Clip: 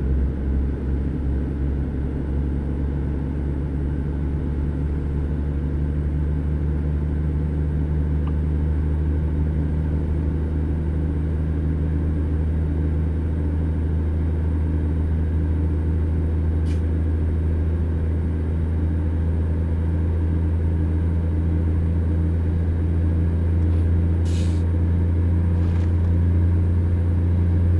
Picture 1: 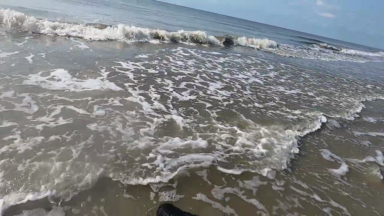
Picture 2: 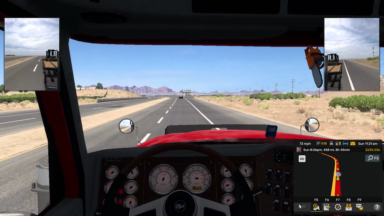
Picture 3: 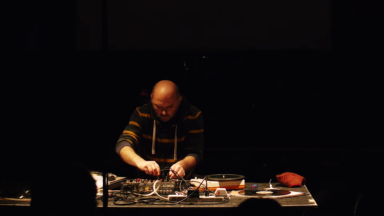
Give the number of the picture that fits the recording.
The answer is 2